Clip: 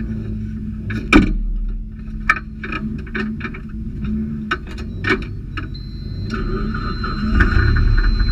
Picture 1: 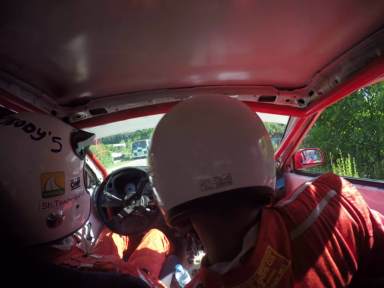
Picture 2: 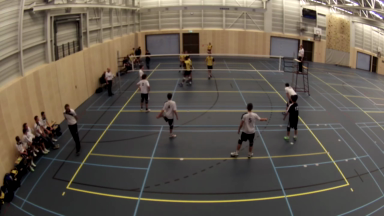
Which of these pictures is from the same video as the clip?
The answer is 1